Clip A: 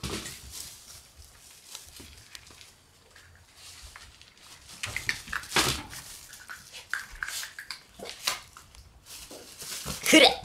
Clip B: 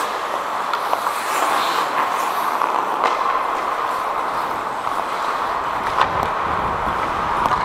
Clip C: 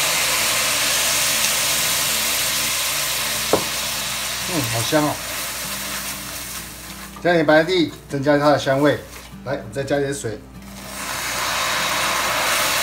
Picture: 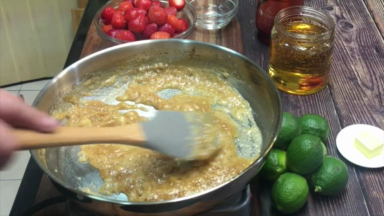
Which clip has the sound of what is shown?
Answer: C